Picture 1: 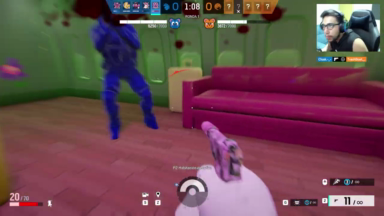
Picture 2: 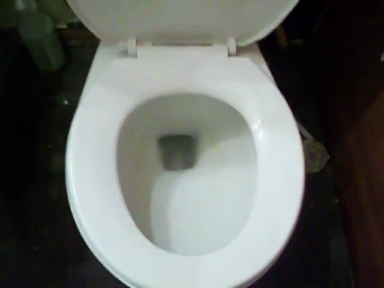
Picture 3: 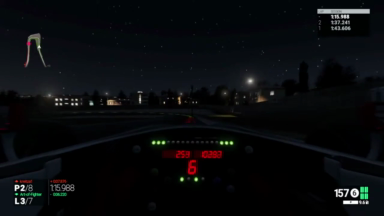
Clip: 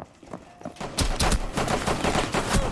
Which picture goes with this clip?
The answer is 1